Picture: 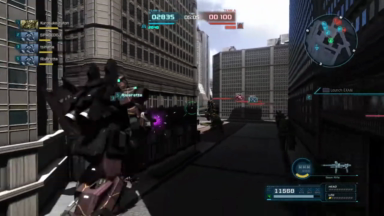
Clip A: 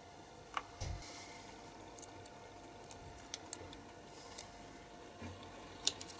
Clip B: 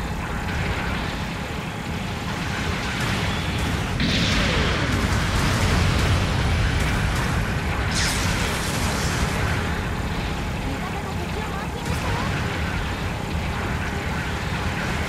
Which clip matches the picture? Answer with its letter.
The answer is B